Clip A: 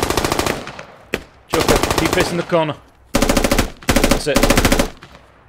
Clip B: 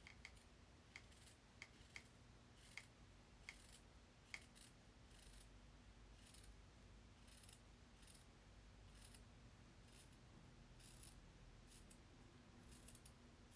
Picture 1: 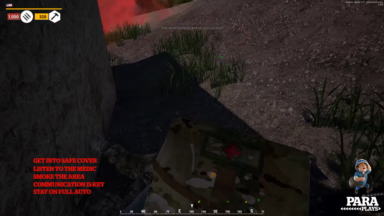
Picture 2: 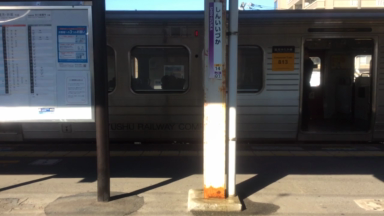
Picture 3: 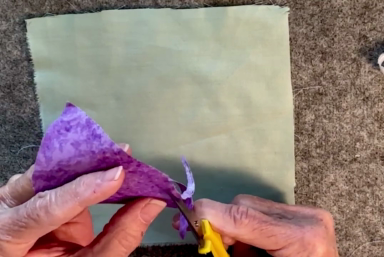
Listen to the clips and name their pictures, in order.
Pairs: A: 1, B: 3